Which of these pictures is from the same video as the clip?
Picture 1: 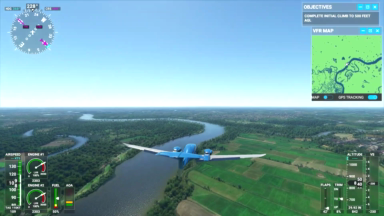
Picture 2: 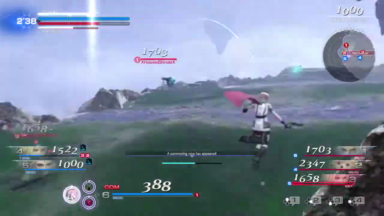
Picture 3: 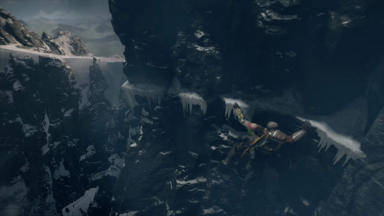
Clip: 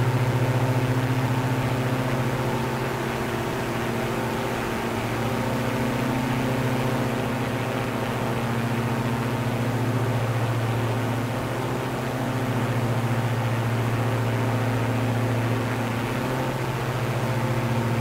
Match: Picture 1